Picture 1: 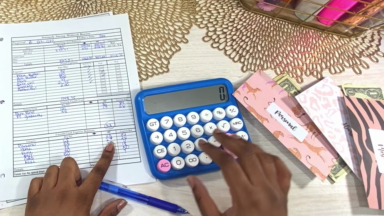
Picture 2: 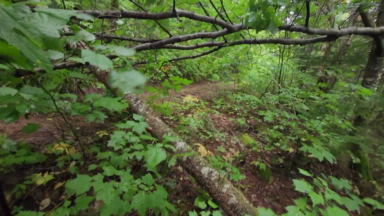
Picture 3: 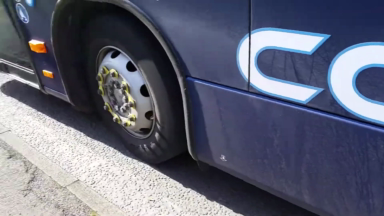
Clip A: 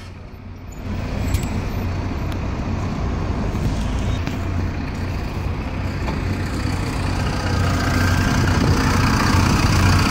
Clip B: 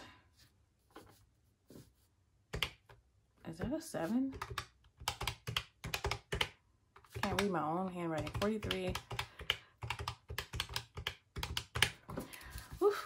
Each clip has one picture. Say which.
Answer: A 3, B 1